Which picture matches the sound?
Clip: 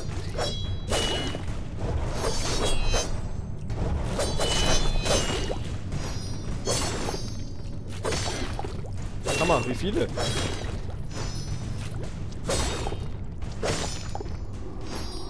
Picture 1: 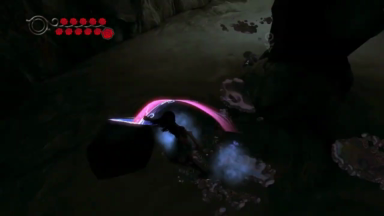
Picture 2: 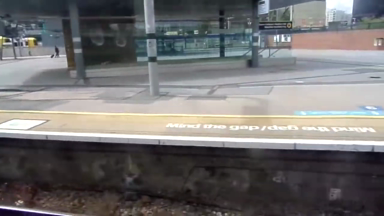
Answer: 1